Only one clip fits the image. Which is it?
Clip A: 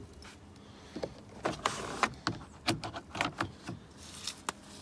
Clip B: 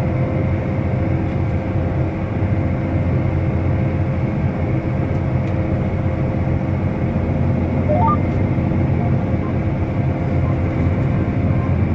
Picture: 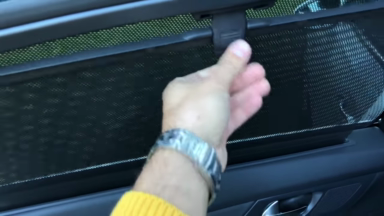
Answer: A